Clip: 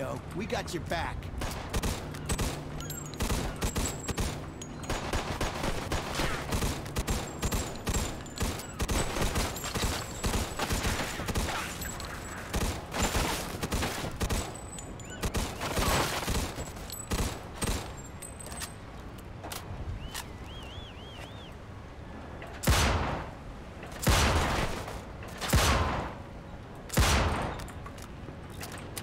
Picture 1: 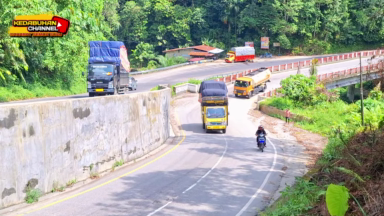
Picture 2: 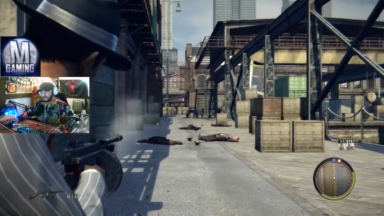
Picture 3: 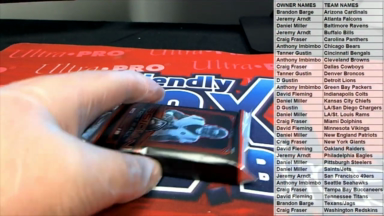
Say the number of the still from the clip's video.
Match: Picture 2